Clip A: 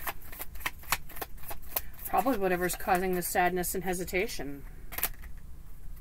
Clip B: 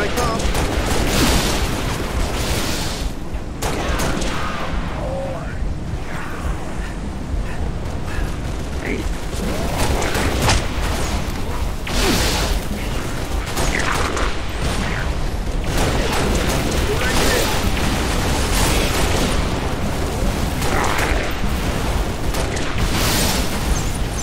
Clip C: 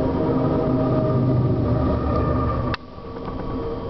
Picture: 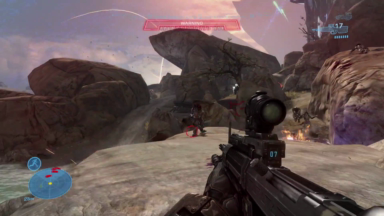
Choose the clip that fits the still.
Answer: B